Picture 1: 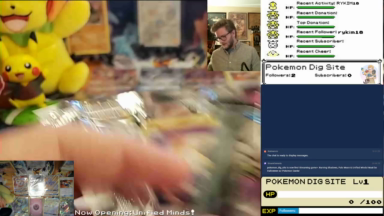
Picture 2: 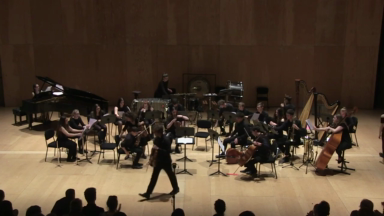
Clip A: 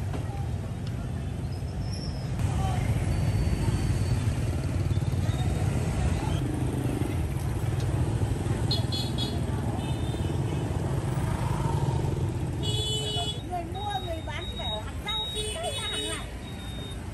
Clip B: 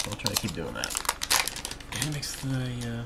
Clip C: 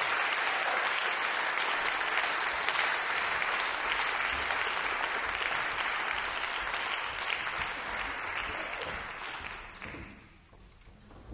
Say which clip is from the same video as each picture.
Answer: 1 B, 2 C